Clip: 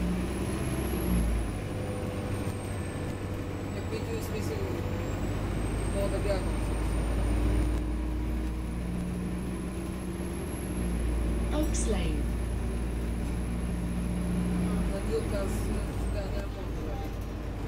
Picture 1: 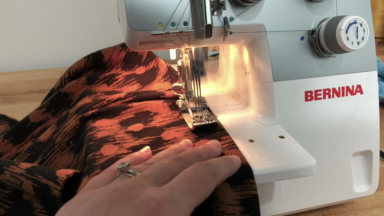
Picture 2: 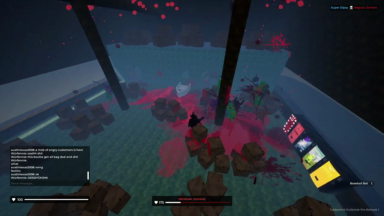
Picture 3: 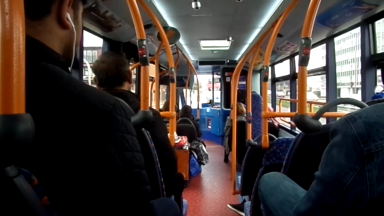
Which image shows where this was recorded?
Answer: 3